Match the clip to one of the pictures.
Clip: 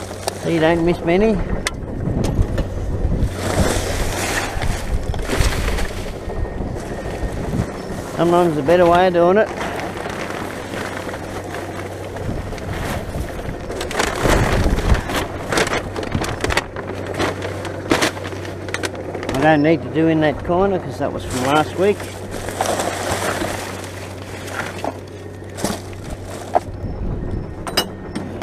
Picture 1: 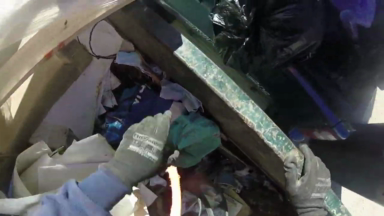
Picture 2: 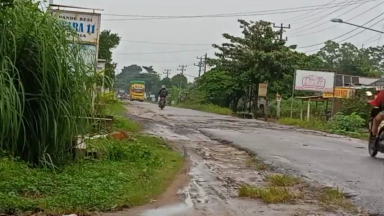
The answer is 1